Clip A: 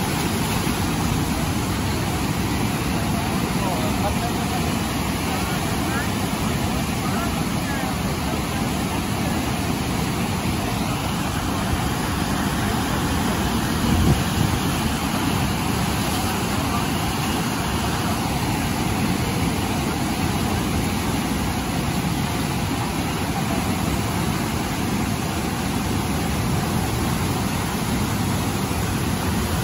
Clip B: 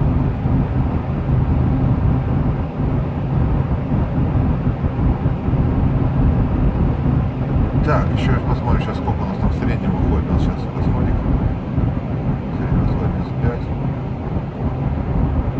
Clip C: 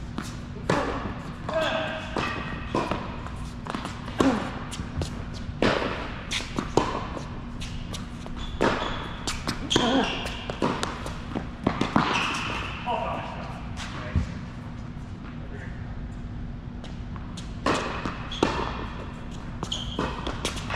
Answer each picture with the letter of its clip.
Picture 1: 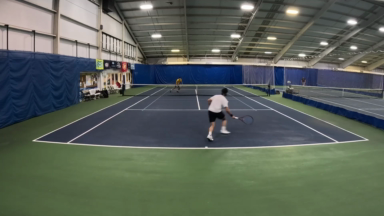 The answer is C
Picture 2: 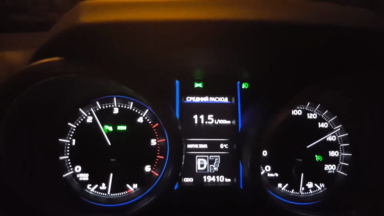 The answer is B